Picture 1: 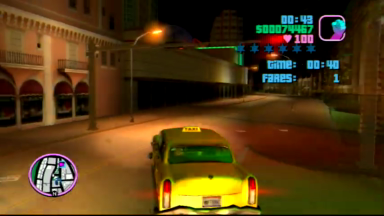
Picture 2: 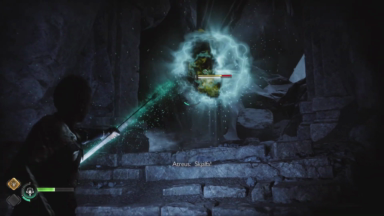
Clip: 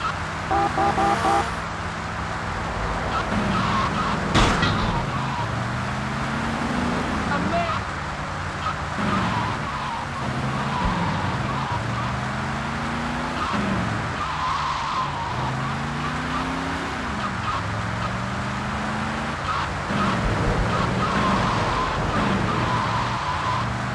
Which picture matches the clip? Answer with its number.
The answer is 1